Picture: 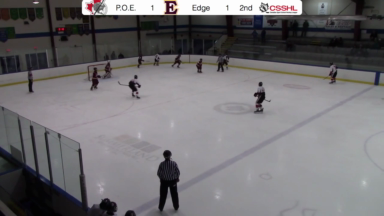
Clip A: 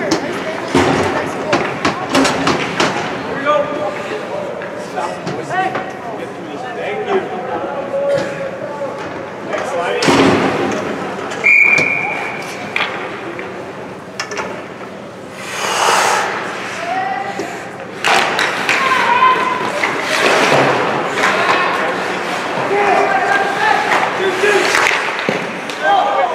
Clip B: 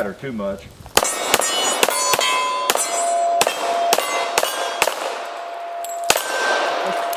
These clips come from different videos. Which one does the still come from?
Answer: A